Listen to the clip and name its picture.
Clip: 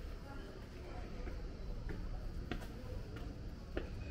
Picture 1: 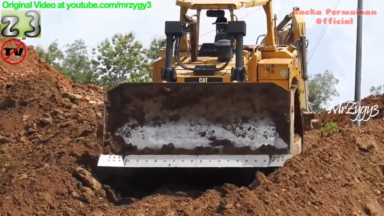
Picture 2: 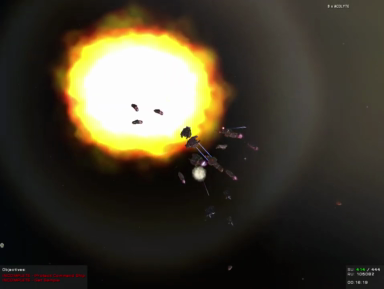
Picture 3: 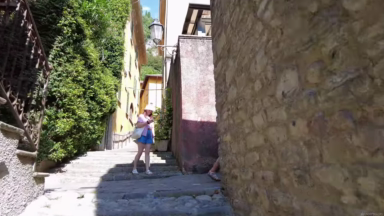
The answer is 3